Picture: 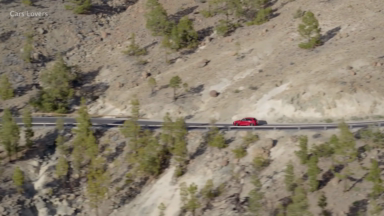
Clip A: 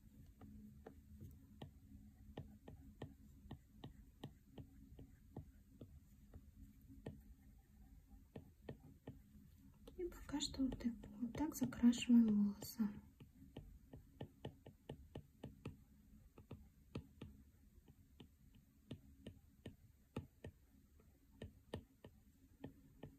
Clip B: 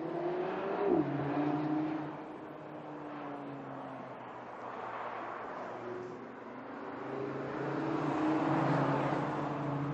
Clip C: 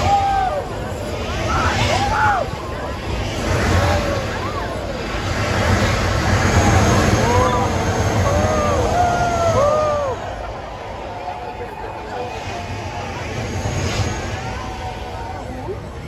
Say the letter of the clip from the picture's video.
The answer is B